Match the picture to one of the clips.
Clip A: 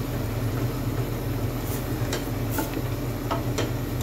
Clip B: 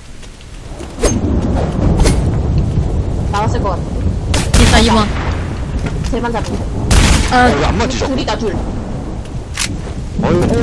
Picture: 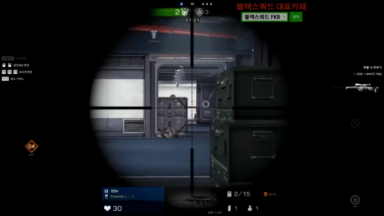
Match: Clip B